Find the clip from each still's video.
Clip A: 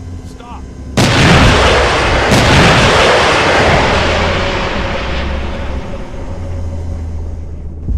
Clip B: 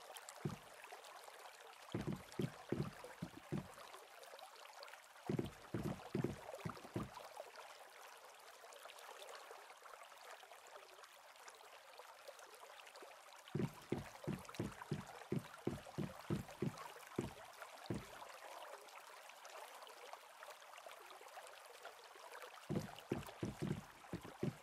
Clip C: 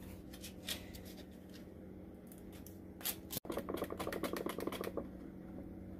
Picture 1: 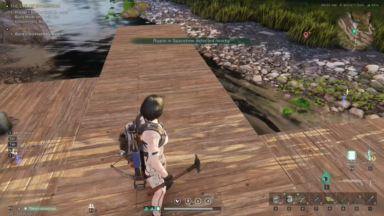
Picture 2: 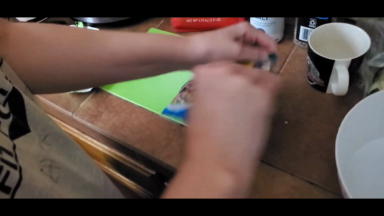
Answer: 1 B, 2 C